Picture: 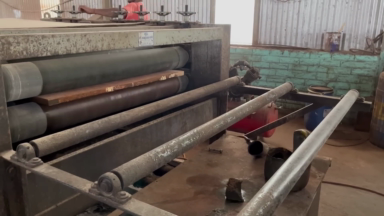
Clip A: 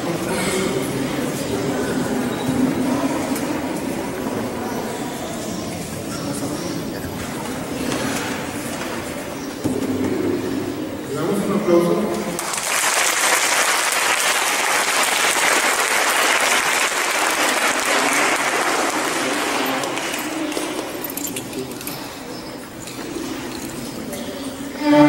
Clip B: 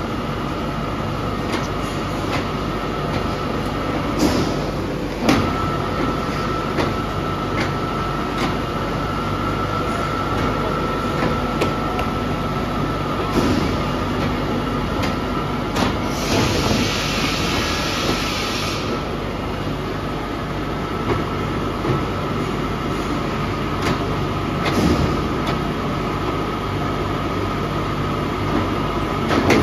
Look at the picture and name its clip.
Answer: B